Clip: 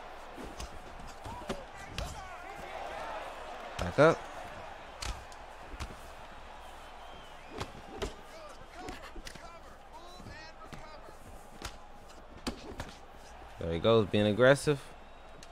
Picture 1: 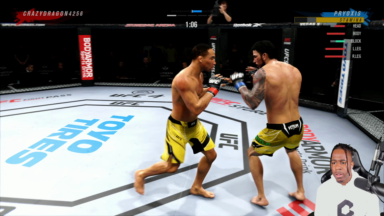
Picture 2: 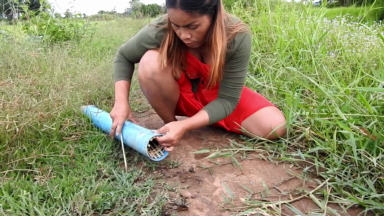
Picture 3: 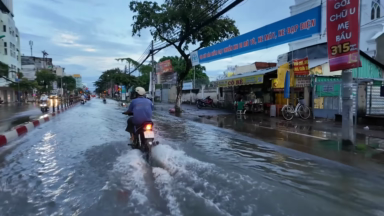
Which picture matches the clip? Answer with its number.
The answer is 1